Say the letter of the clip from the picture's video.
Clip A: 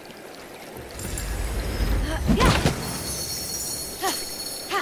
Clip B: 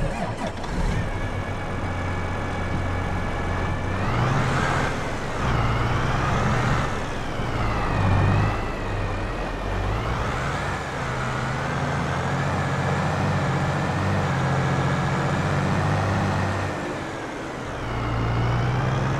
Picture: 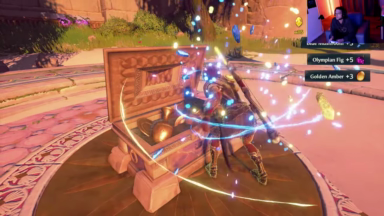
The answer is A